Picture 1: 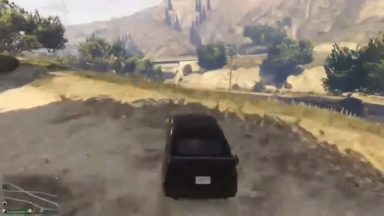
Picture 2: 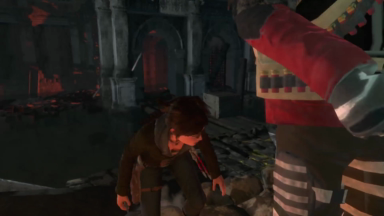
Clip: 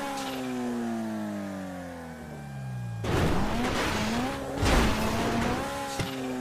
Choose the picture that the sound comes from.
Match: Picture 1